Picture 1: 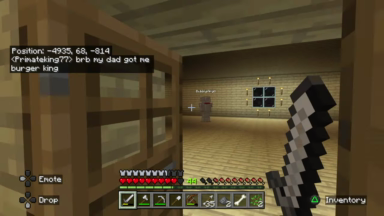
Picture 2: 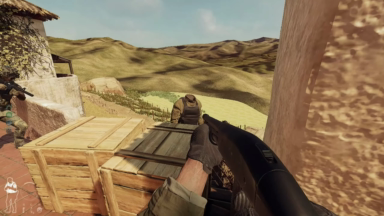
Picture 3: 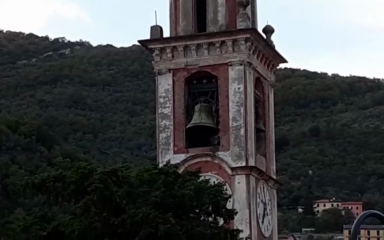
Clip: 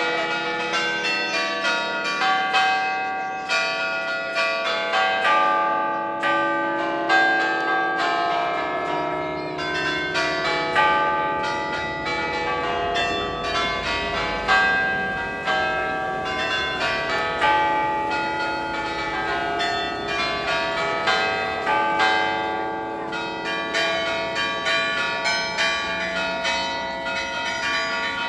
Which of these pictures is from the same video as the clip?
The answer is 3